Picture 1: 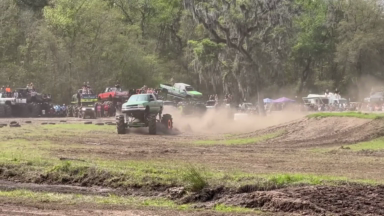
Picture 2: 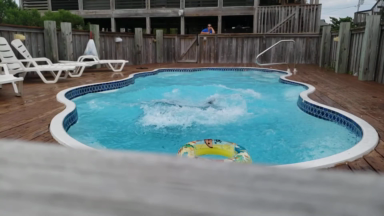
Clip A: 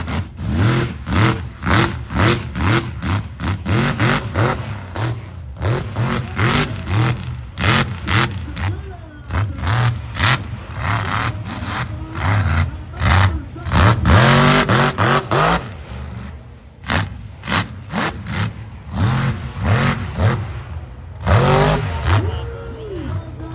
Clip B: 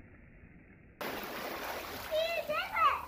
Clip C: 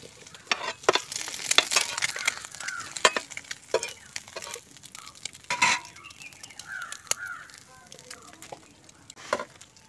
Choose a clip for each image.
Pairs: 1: A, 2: B